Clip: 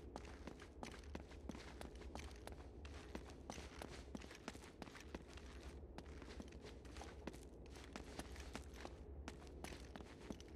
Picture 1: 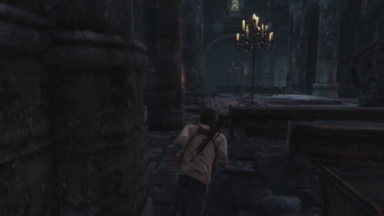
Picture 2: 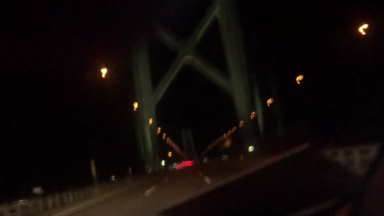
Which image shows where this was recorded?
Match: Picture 1